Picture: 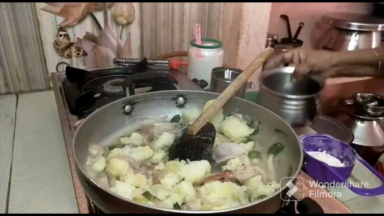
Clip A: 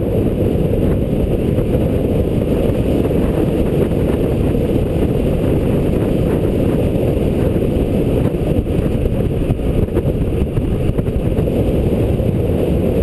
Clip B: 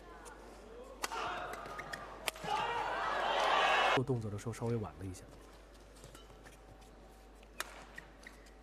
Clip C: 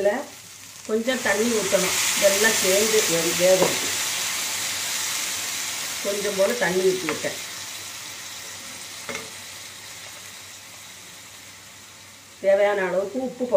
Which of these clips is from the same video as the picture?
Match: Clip C